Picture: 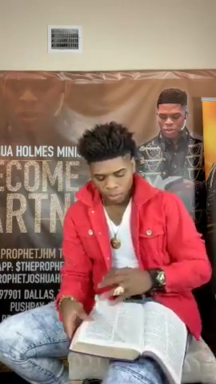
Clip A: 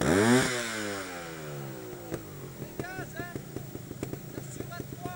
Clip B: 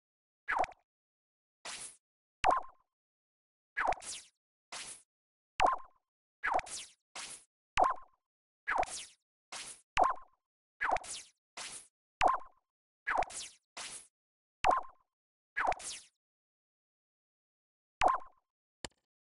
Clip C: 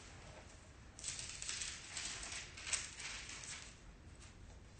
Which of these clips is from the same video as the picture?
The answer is C